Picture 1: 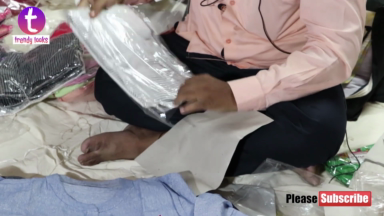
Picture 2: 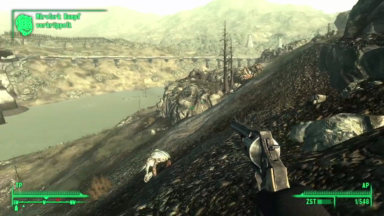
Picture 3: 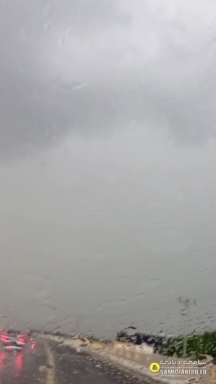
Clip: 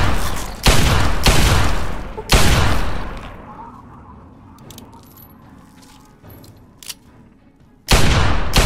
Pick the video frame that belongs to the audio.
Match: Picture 2